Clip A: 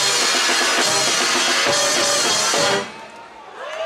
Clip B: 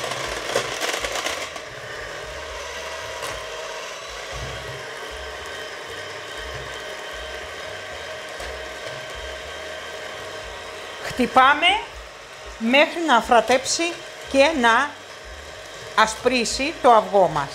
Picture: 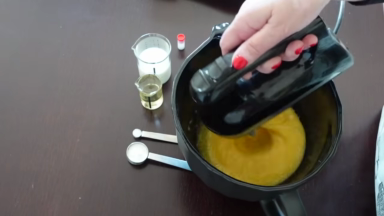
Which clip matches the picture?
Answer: B